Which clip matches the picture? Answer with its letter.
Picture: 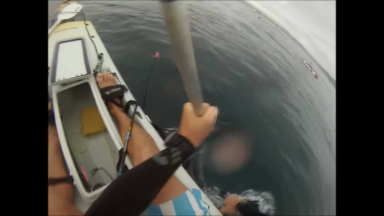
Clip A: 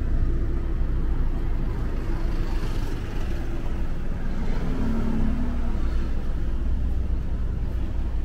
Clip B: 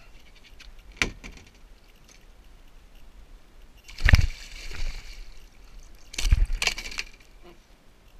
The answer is B